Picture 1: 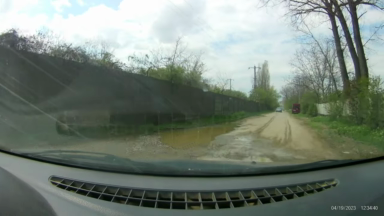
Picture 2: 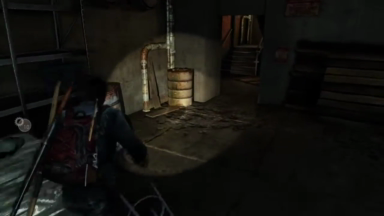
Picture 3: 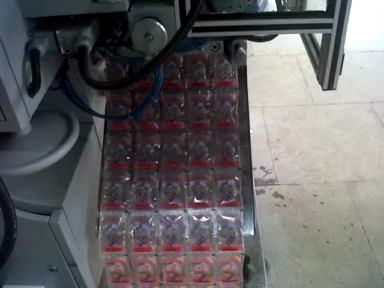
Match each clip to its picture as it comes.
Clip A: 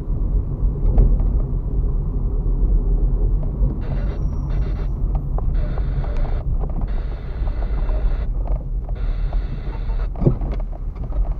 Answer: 1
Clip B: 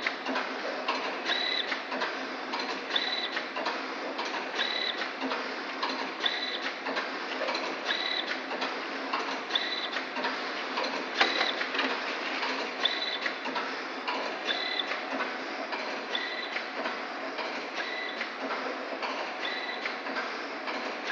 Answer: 3